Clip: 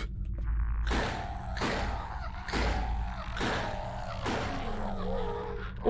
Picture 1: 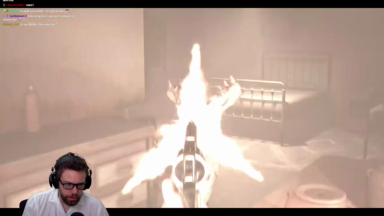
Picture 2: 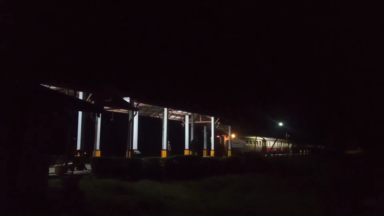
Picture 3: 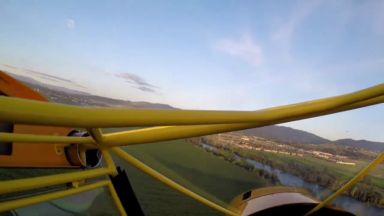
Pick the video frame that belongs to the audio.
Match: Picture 1